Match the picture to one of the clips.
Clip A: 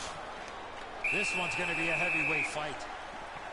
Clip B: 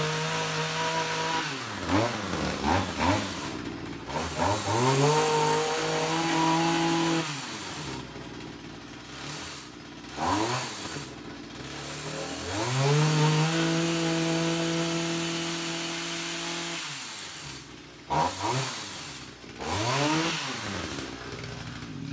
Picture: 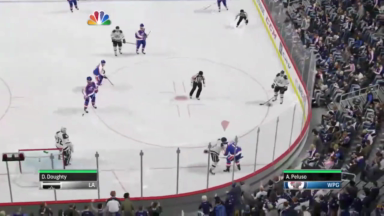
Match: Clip A